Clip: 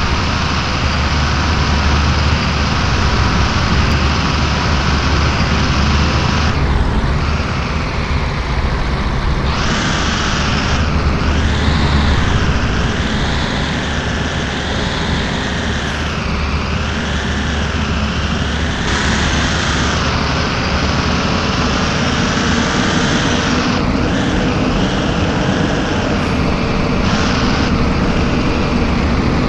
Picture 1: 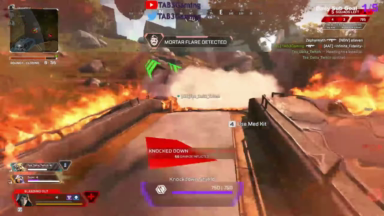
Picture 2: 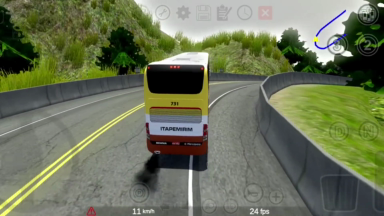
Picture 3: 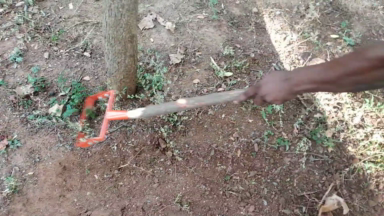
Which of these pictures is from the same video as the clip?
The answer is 2